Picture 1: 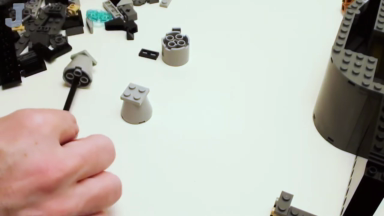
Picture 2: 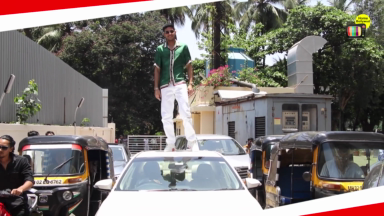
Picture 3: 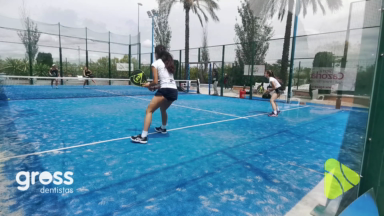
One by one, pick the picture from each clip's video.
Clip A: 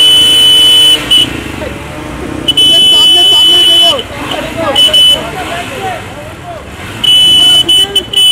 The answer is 2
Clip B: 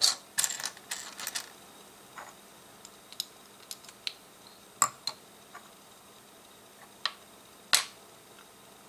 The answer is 1